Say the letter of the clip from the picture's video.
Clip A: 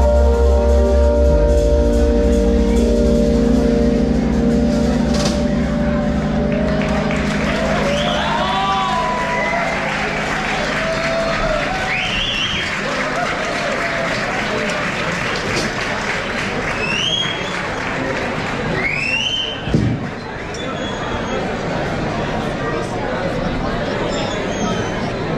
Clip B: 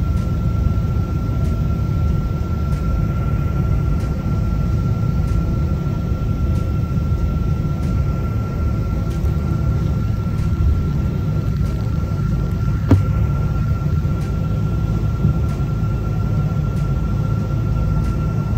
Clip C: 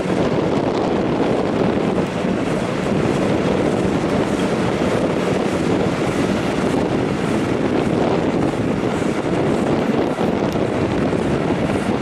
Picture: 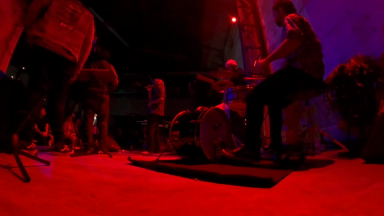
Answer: A